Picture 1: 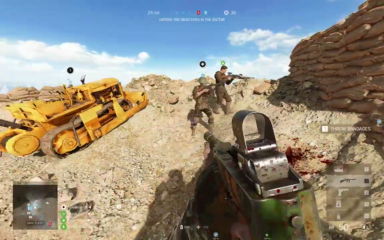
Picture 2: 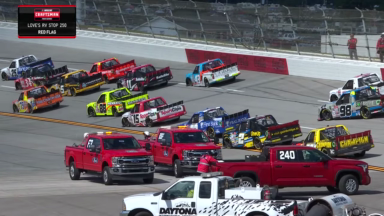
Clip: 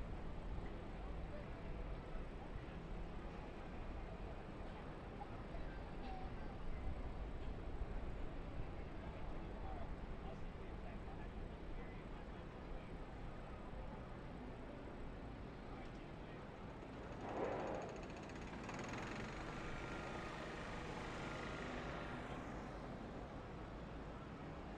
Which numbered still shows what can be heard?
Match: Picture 2